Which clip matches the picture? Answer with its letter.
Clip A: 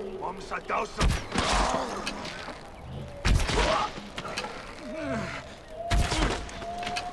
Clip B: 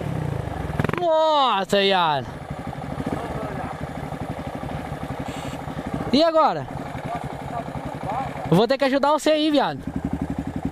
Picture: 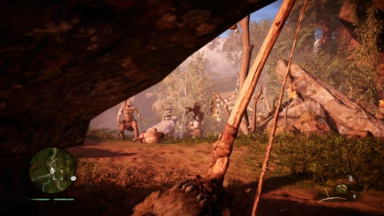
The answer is A